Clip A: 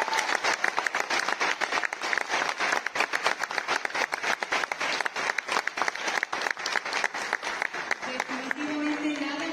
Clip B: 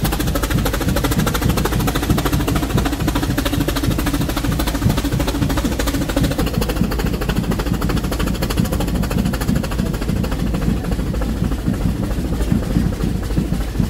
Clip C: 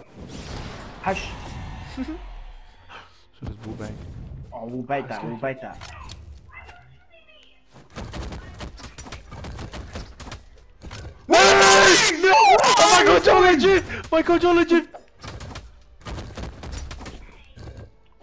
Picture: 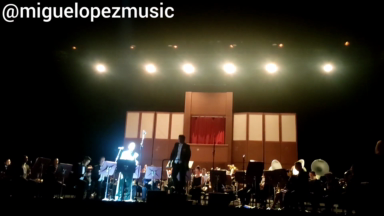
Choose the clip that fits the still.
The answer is A